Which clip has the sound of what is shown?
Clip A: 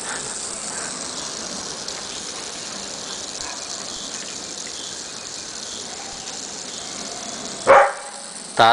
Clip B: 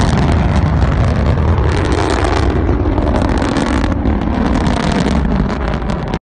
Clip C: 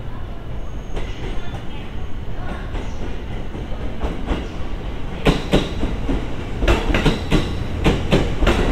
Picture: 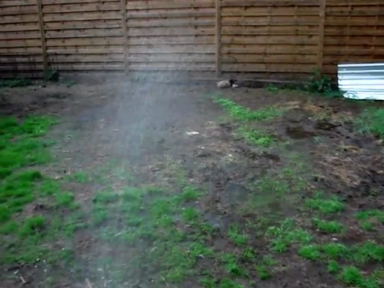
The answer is A